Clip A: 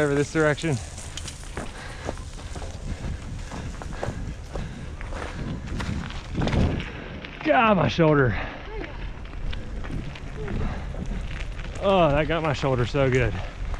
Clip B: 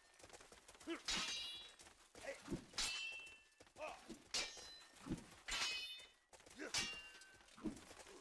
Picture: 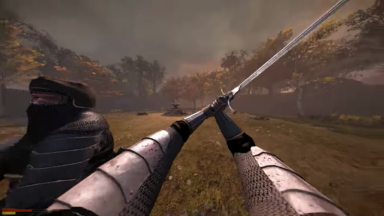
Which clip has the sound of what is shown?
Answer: B